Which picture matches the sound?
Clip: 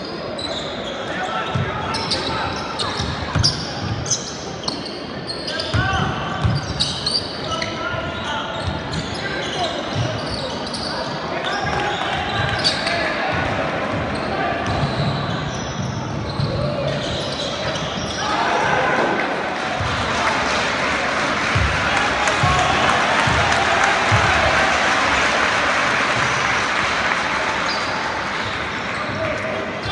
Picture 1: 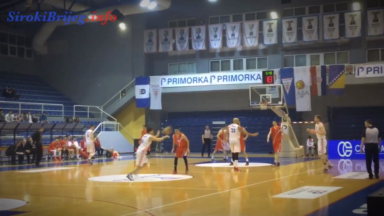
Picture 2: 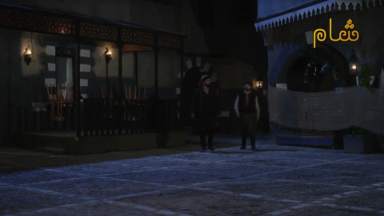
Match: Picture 1